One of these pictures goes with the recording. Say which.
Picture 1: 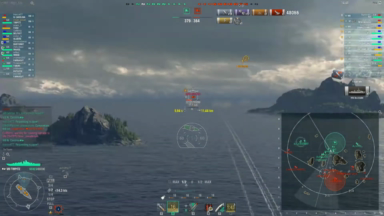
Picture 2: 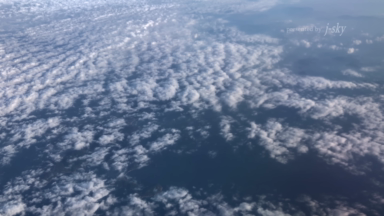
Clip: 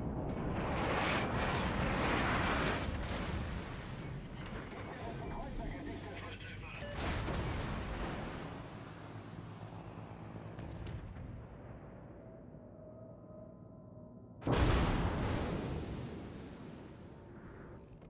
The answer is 1